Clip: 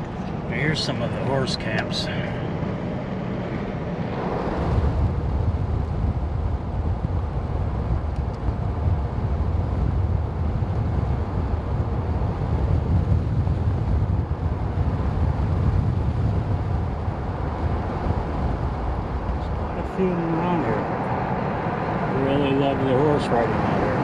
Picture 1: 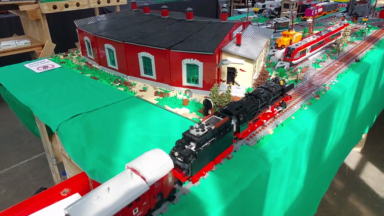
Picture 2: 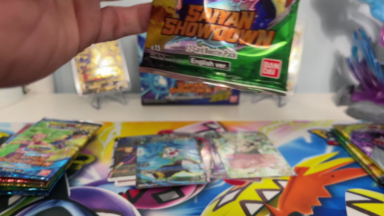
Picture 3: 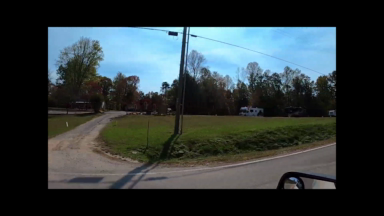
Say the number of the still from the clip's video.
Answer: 3